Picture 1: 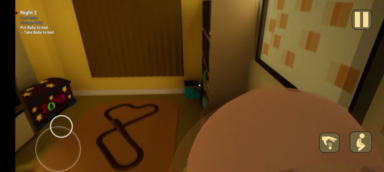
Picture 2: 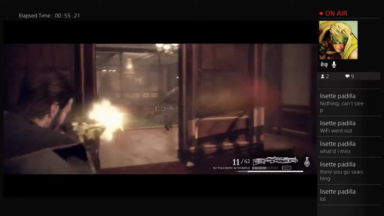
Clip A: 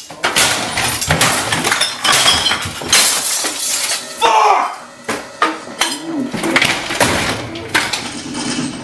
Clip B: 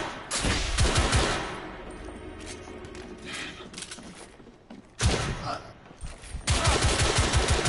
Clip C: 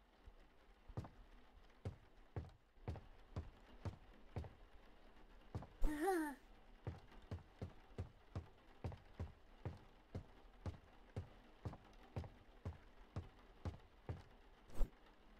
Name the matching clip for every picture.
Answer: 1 C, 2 B